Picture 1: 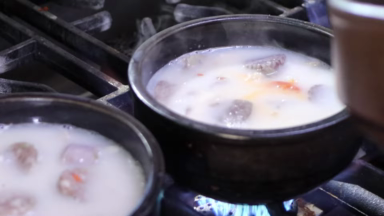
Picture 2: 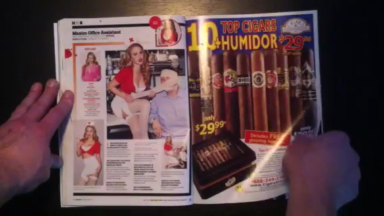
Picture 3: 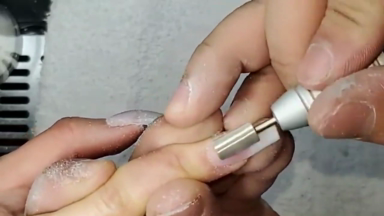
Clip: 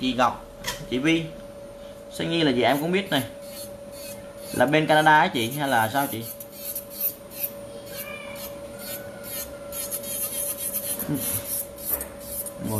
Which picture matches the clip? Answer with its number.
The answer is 3